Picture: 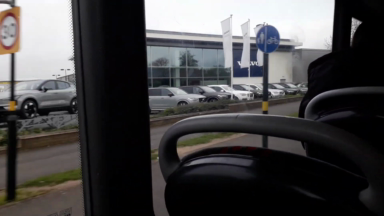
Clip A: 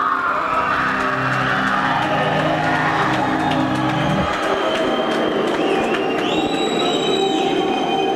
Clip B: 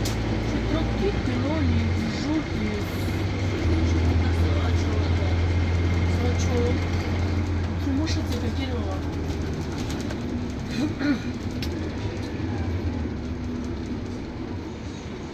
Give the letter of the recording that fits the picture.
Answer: B